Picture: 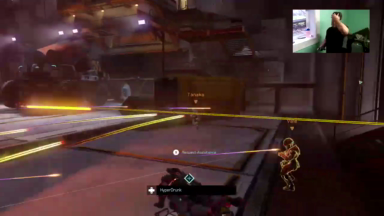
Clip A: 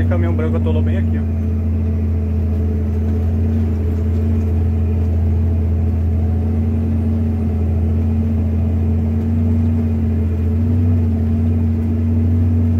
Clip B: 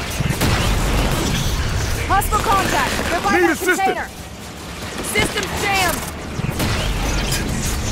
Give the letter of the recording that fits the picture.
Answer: B